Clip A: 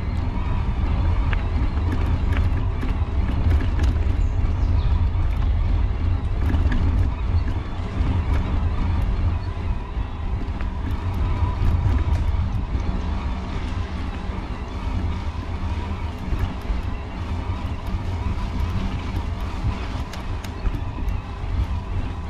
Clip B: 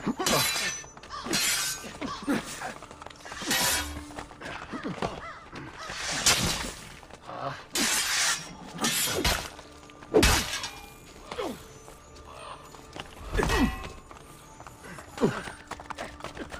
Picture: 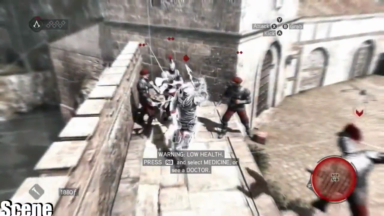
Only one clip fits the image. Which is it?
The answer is B